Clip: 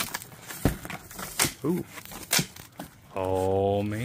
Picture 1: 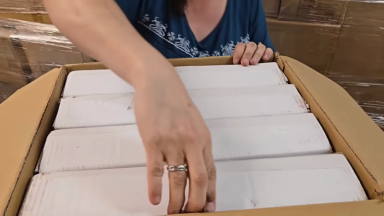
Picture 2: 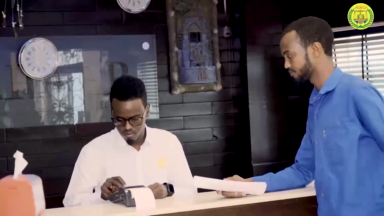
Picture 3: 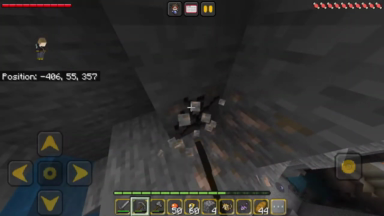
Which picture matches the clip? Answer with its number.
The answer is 1